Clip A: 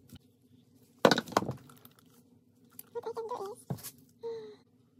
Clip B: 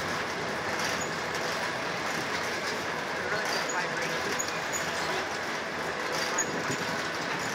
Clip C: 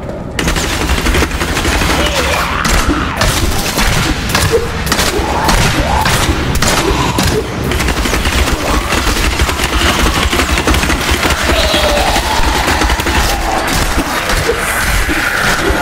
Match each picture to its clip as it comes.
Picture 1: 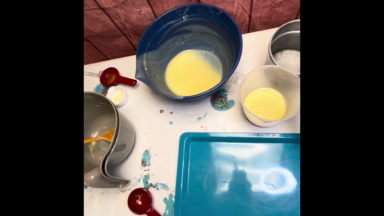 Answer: A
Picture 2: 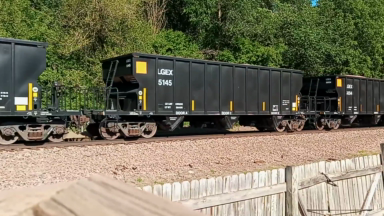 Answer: B